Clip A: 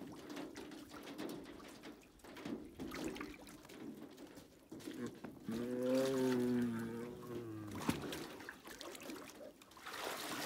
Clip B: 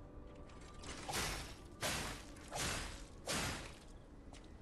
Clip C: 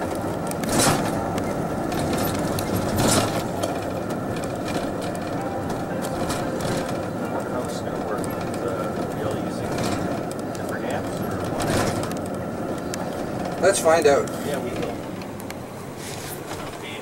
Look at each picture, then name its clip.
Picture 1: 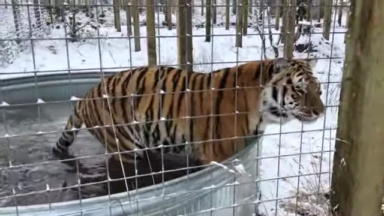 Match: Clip A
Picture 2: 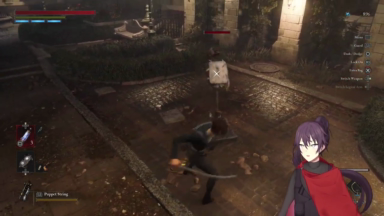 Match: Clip B